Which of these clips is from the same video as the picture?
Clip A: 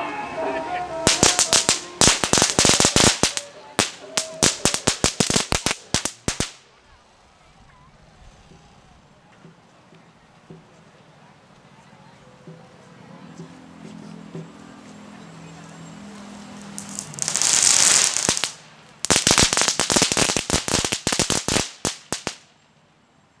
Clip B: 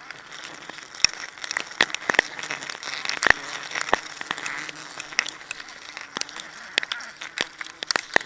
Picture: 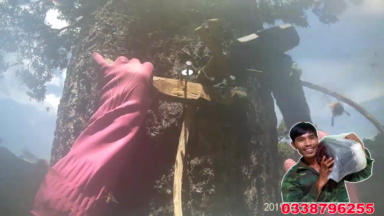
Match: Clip B